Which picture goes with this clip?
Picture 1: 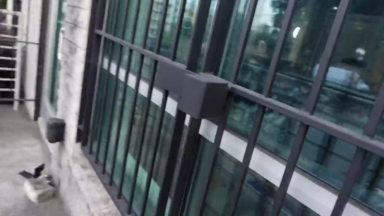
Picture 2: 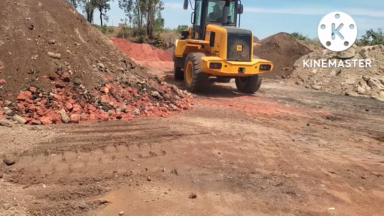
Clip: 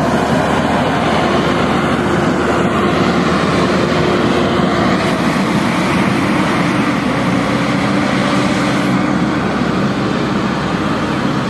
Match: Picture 2